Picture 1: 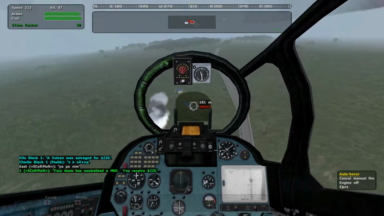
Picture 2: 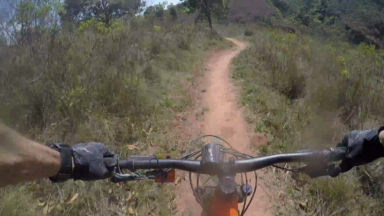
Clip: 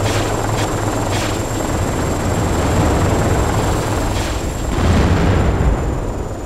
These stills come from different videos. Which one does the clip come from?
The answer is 1